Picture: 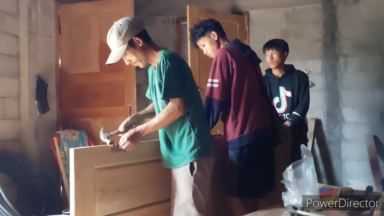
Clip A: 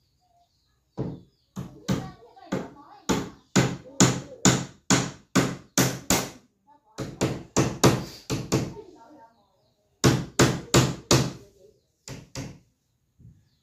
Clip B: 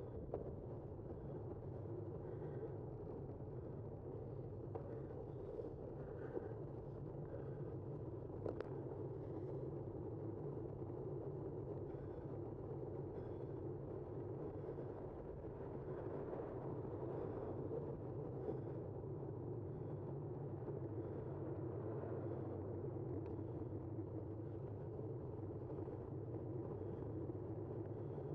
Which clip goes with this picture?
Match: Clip A